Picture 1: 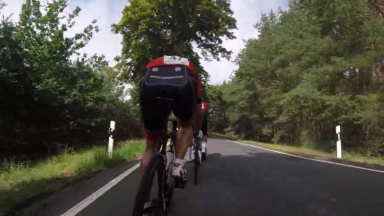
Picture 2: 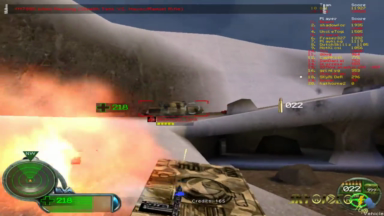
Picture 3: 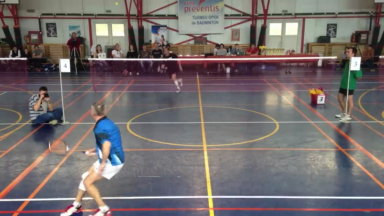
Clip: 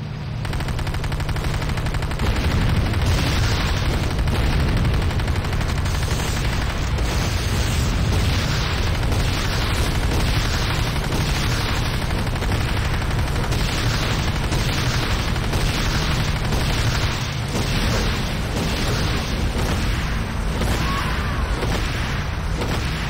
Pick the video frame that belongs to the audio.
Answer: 2